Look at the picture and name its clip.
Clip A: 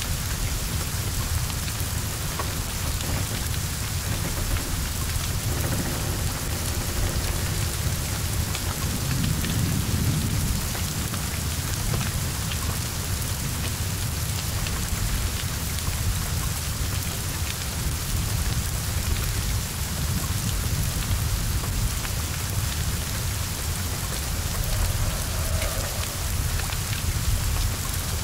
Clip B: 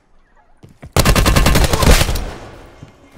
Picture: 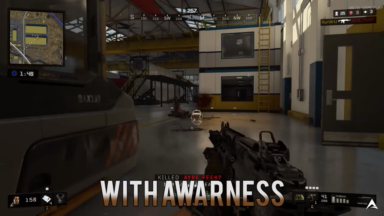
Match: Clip B